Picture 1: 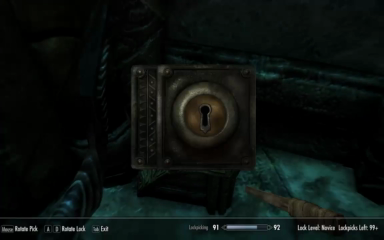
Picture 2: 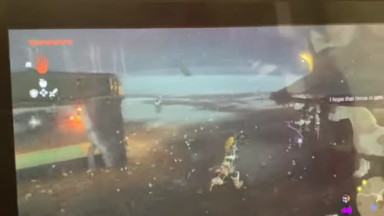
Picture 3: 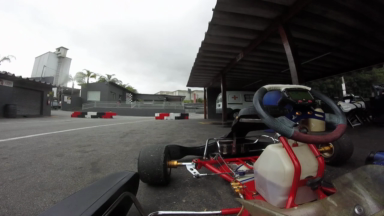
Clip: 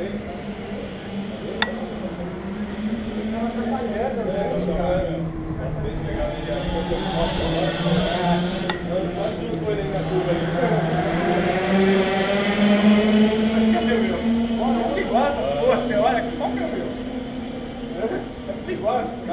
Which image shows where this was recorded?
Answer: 3